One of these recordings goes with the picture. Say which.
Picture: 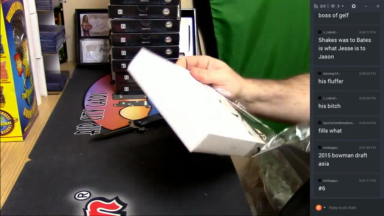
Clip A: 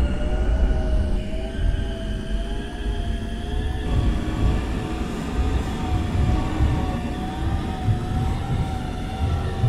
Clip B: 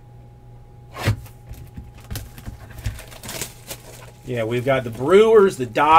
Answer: B